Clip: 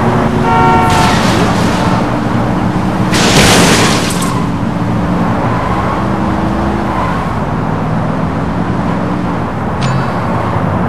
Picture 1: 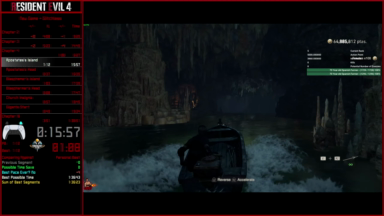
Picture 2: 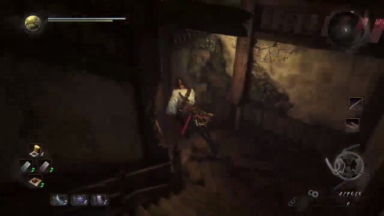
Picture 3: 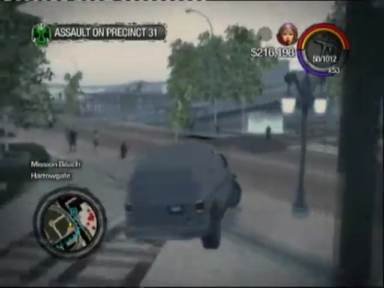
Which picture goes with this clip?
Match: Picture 3